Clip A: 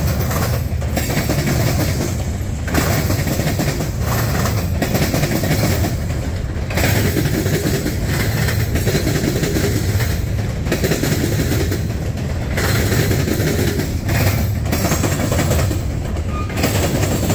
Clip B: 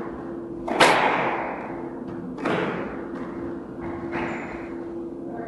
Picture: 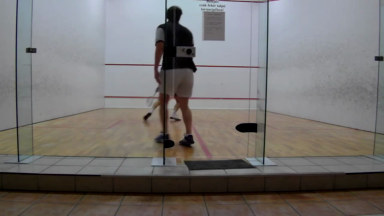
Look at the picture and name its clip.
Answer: B